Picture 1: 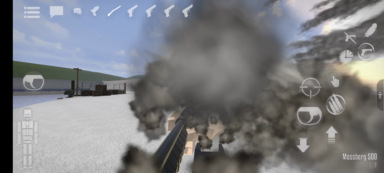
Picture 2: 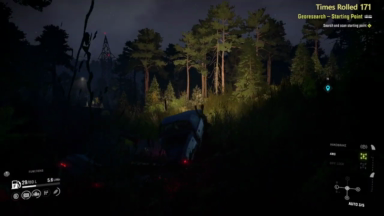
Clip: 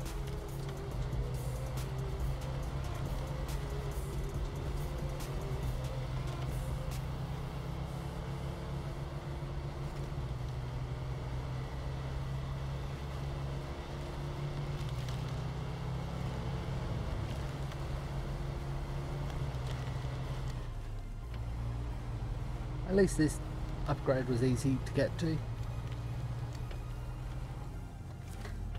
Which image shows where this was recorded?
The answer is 2